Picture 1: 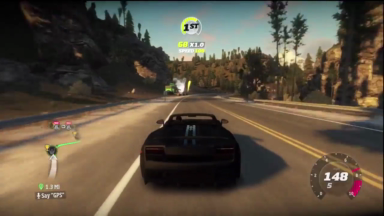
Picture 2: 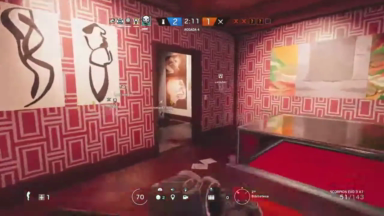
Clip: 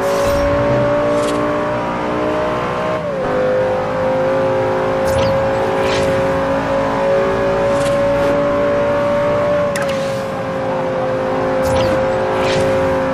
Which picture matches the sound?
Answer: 1